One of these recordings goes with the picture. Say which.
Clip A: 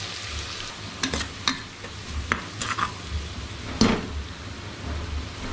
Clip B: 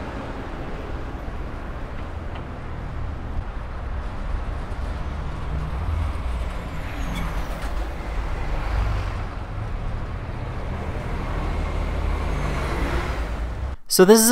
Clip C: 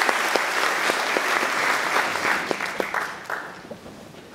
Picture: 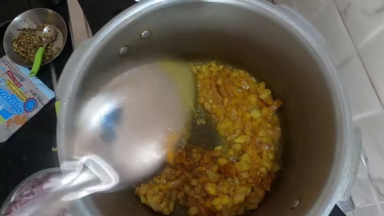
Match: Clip A